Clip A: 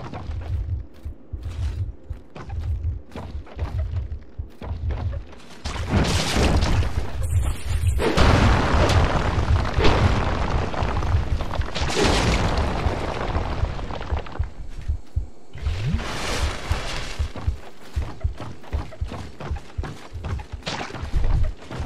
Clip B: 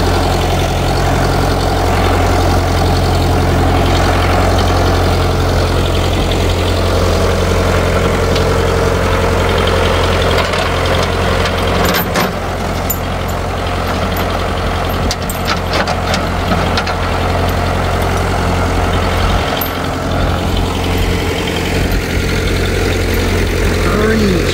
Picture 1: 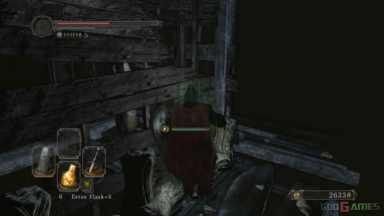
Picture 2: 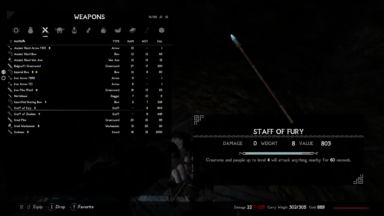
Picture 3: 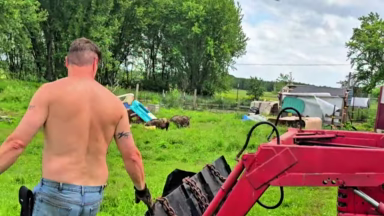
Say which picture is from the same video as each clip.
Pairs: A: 1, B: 3